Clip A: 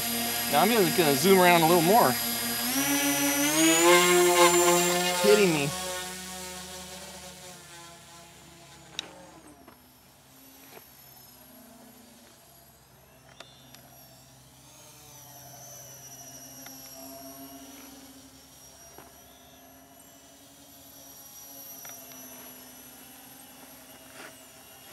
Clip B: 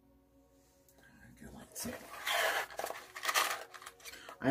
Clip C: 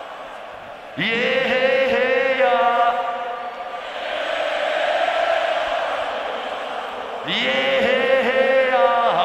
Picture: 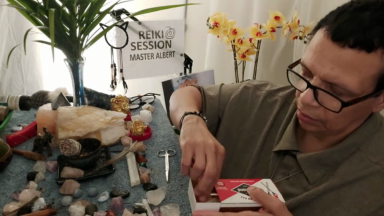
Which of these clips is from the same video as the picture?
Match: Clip B